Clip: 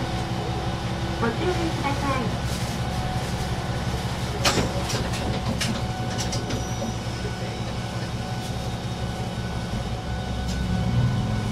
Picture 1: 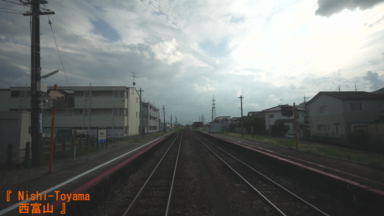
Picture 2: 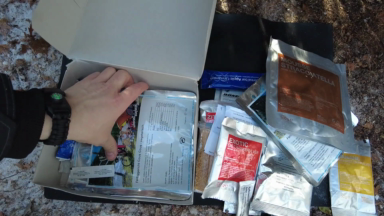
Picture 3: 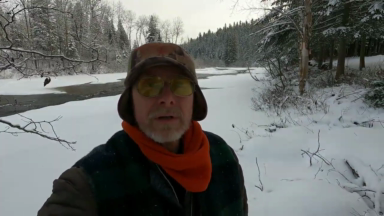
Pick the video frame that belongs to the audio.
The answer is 1